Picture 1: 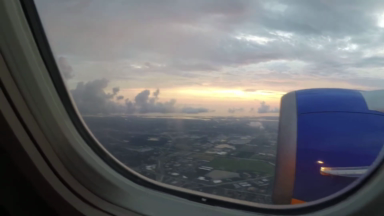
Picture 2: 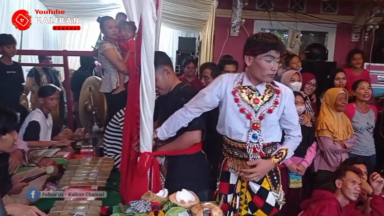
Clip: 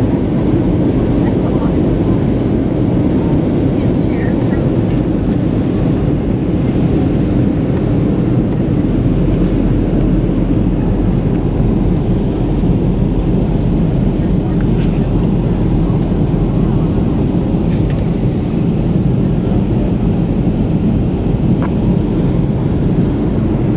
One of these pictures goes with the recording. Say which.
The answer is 1